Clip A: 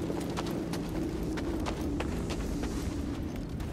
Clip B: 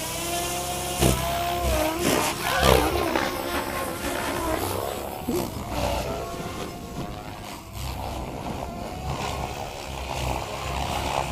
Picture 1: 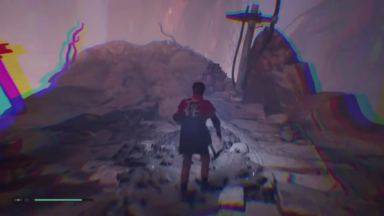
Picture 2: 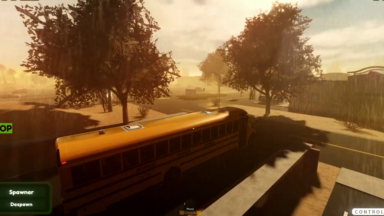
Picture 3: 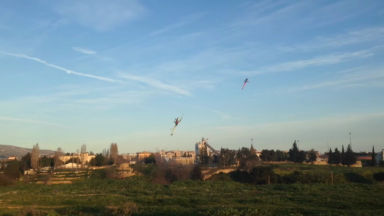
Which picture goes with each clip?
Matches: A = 1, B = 3